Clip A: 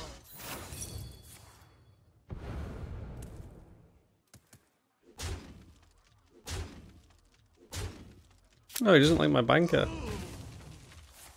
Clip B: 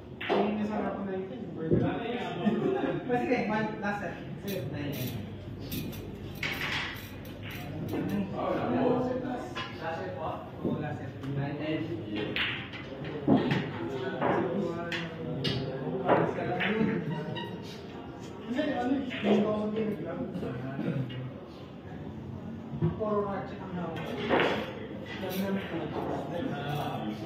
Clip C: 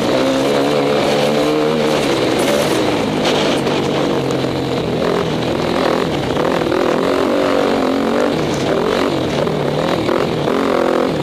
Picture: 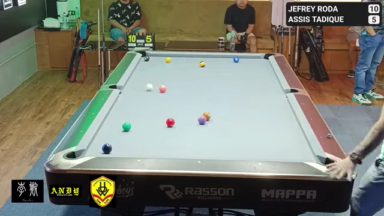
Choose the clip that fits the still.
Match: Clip B